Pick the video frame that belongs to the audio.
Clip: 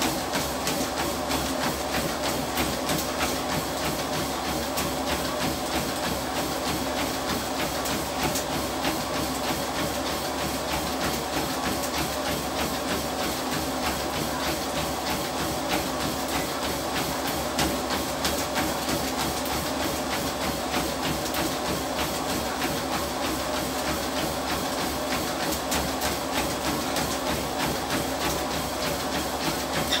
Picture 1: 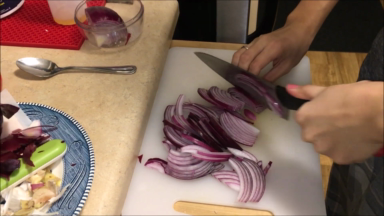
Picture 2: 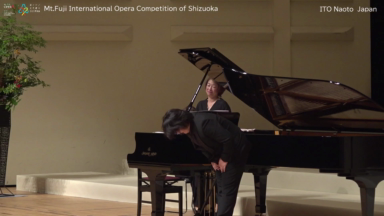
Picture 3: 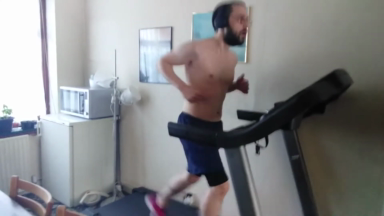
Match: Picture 3